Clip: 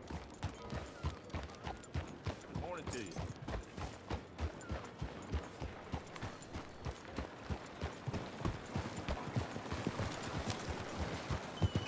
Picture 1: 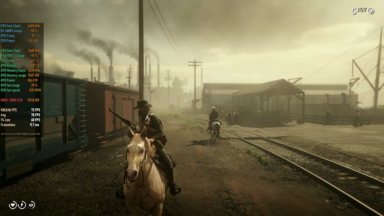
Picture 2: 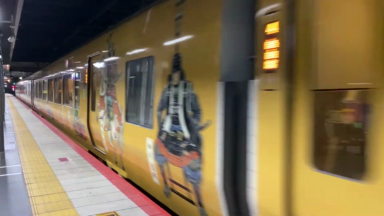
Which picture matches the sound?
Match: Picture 1